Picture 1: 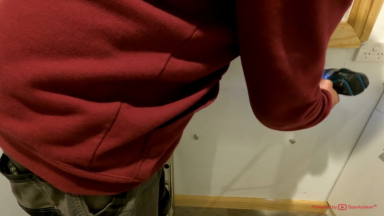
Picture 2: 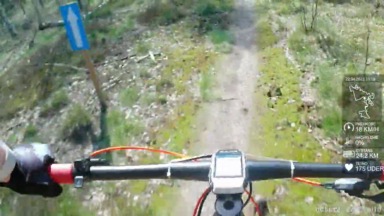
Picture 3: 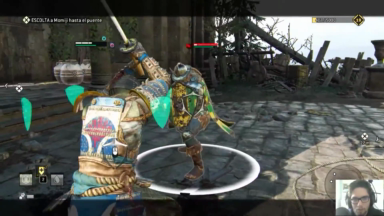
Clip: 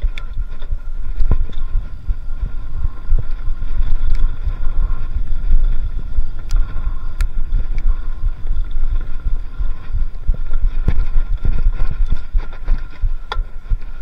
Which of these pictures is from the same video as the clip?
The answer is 2